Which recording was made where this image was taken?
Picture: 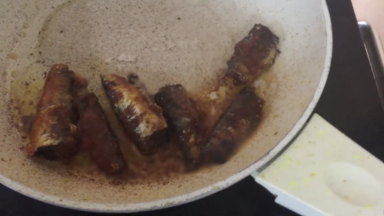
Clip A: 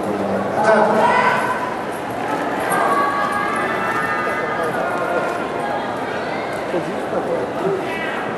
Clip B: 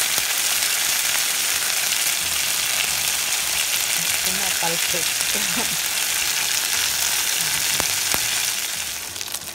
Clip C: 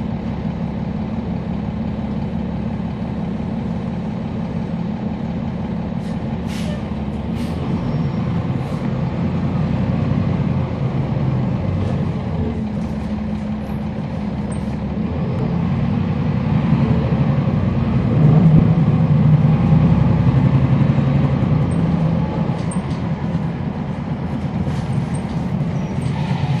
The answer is B